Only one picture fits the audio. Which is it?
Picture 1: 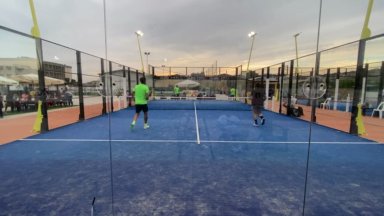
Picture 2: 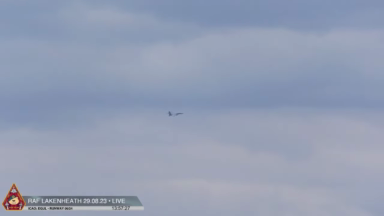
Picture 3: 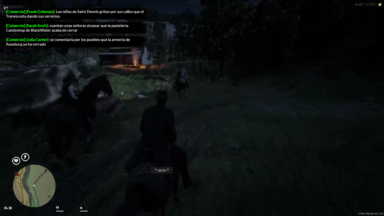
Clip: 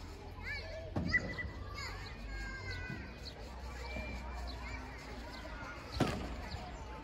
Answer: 1